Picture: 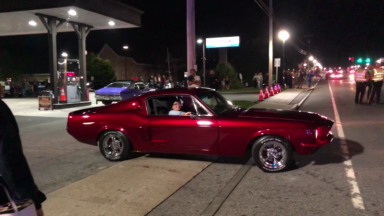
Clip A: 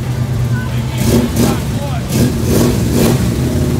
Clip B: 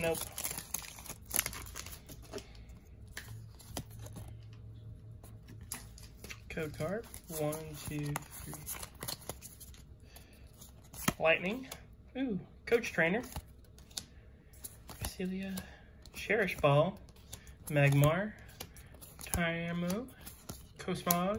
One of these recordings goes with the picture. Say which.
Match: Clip A